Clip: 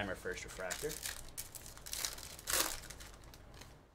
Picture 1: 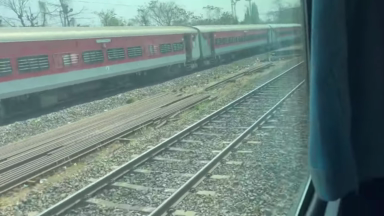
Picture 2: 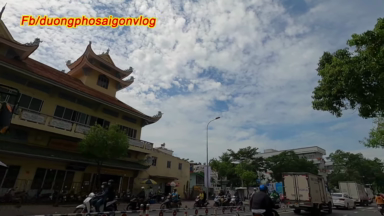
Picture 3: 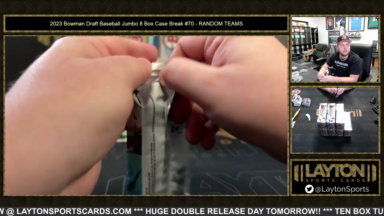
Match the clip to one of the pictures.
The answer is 3